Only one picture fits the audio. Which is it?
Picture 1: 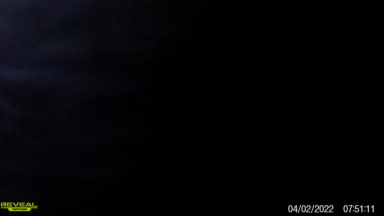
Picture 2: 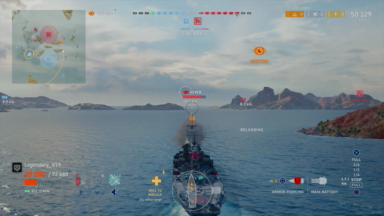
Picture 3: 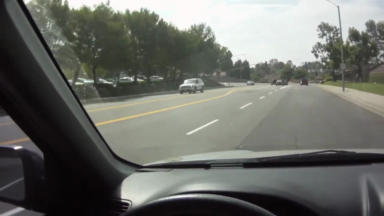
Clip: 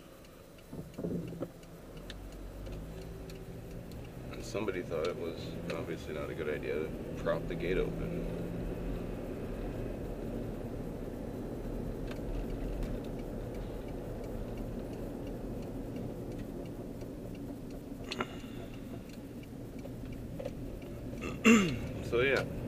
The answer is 3